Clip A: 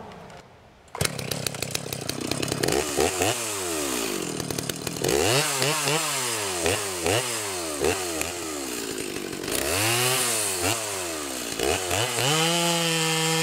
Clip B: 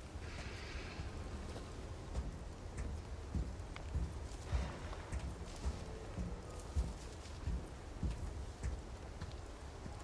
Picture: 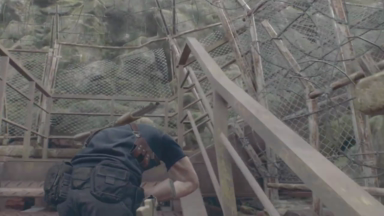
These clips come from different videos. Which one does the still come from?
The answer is B